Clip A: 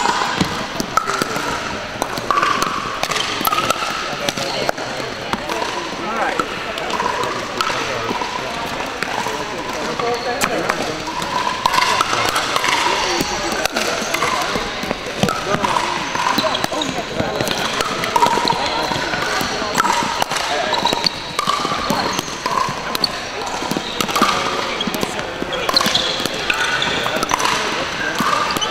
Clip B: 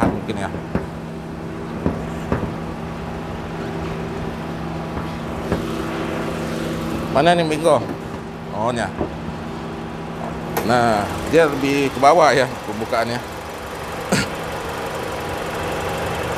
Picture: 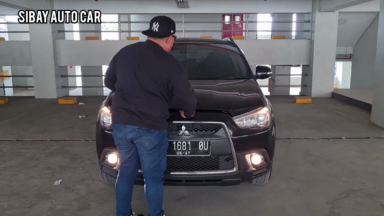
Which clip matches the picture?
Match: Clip B